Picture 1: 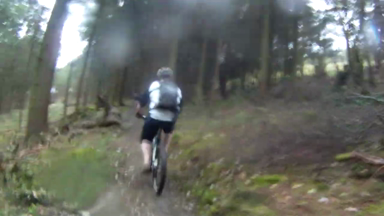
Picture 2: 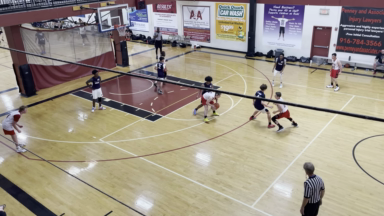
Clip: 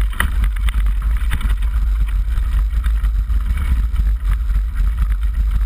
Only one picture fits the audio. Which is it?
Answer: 1